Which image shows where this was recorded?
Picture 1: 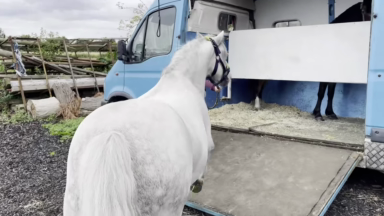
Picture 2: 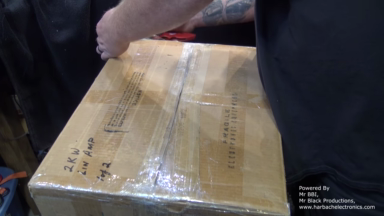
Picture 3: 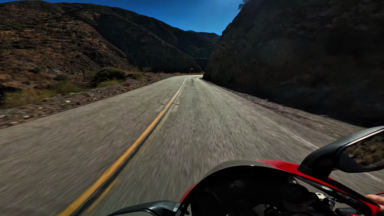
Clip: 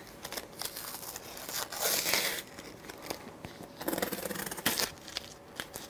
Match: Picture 2